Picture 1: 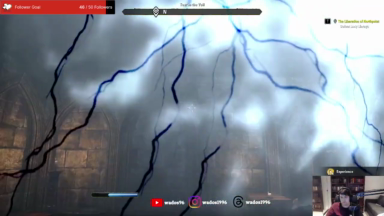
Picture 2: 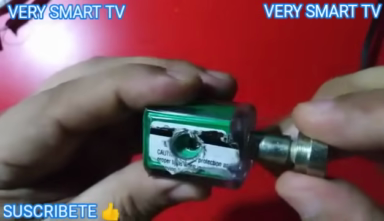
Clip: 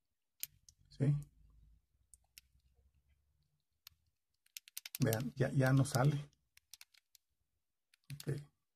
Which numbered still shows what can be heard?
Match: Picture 2